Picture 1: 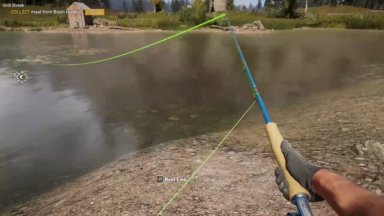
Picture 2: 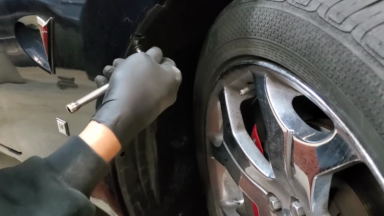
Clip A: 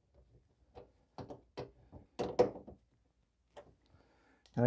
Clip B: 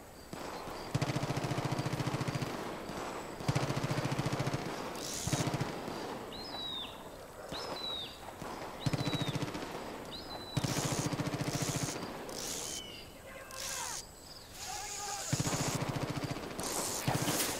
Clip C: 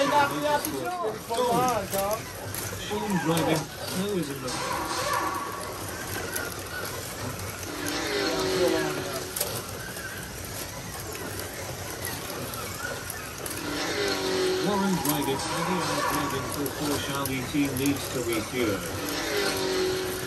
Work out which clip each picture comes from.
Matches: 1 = B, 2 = A